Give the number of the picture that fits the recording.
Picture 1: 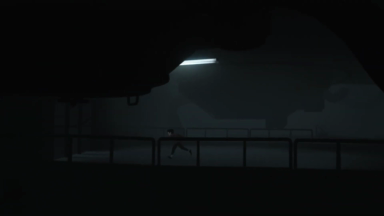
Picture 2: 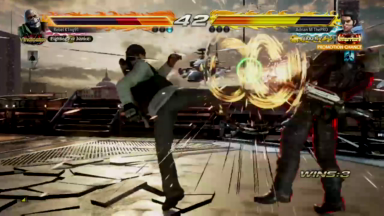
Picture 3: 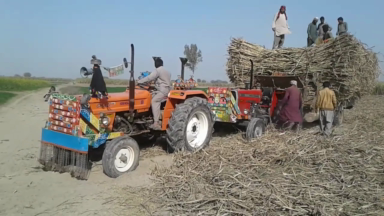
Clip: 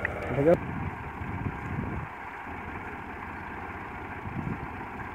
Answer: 3